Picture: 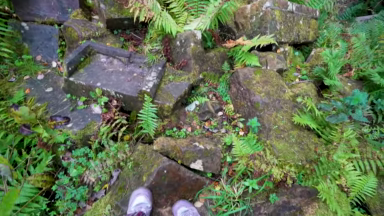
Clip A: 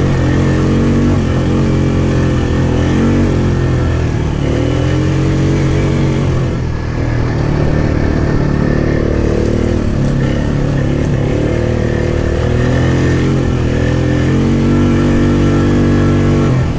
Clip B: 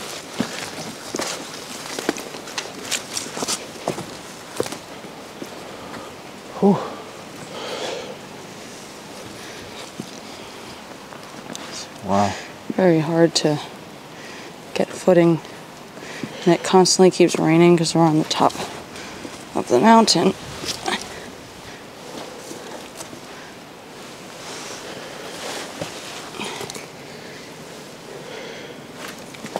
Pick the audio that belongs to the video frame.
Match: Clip B